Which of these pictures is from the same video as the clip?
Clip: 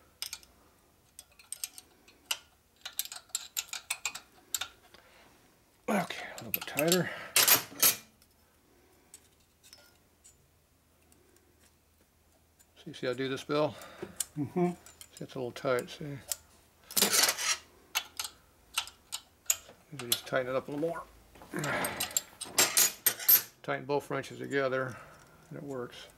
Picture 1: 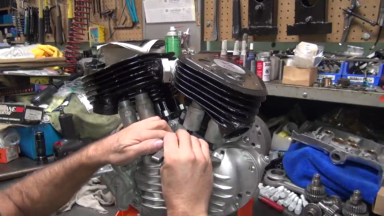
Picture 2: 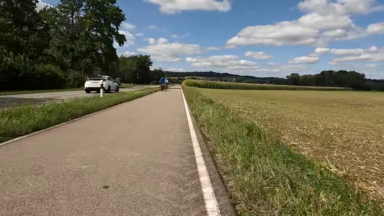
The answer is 1